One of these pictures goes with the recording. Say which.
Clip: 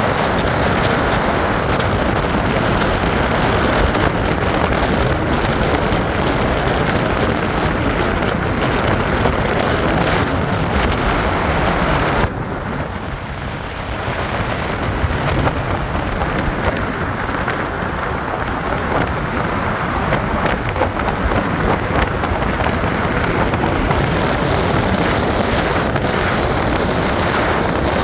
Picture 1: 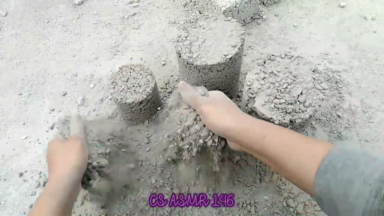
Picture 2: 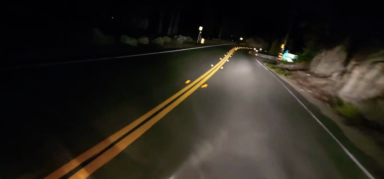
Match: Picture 2